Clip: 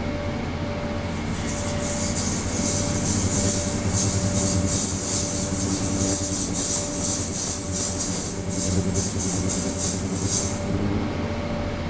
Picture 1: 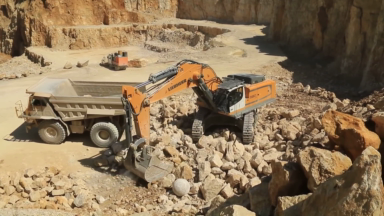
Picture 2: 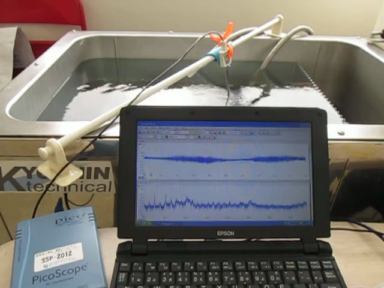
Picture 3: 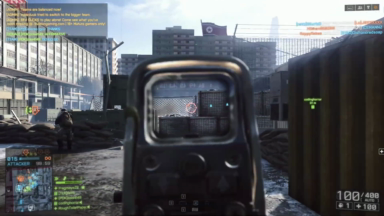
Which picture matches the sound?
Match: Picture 2